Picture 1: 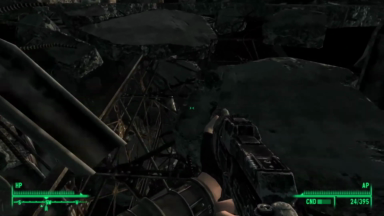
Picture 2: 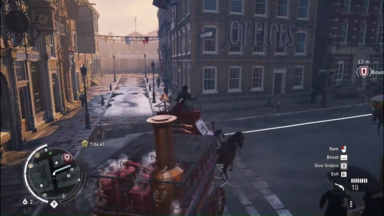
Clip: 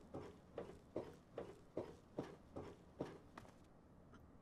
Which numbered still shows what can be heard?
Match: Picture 1